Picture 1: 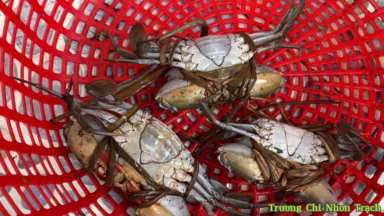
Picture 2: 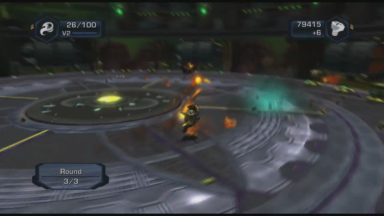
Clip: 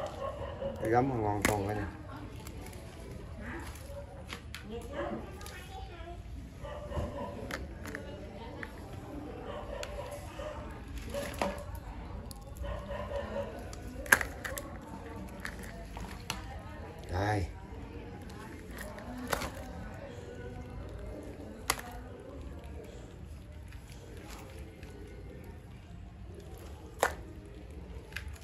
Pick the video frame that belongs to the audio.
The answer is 1